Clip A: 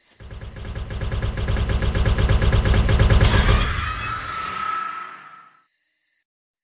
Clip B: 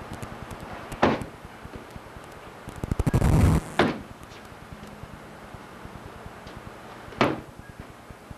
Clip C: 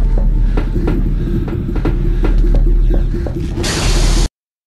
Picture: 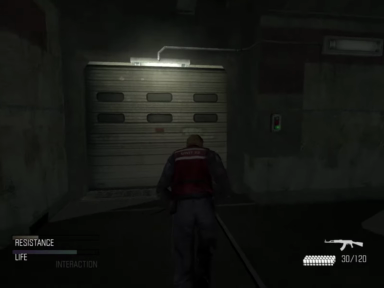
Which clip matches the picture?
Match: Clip C